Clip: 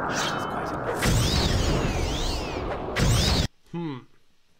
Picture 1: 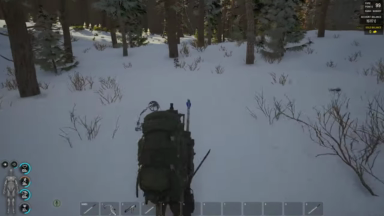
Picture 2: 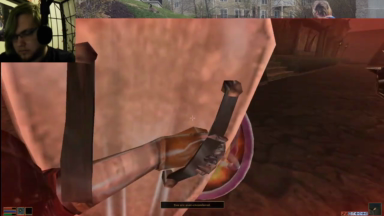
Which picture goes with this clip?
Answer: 2